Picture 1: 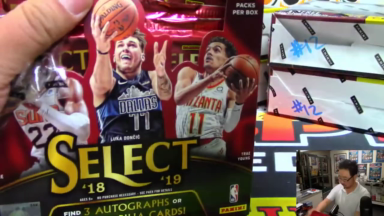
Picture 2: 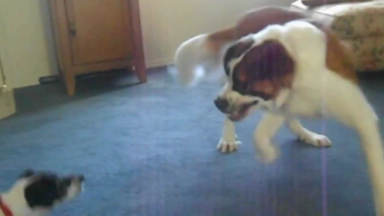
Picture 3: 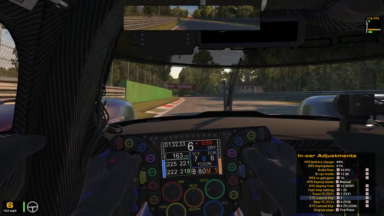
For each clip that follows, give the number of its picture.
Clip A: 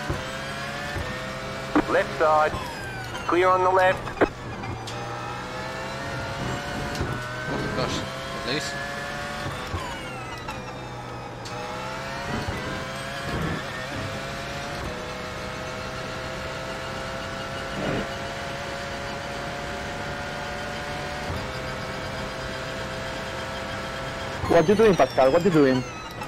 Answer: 3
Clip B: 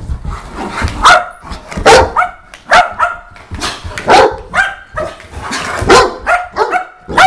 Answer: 2